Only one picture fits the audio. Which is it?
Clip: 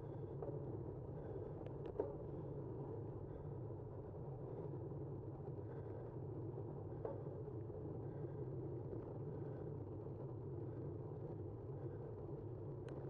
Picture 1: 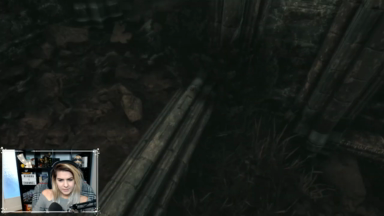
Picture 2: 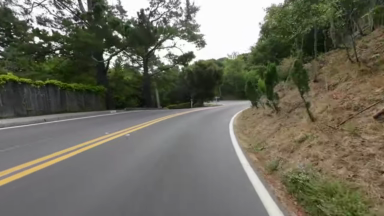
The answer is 2